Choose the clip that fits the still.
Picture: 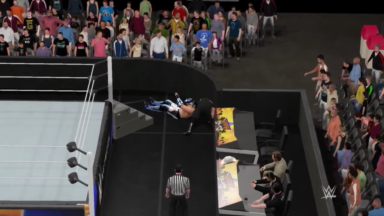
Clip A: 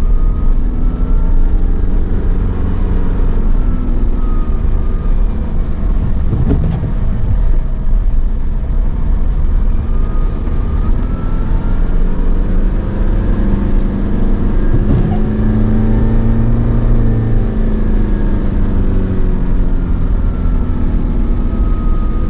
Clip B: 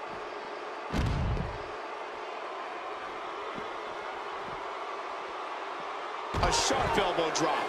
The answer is B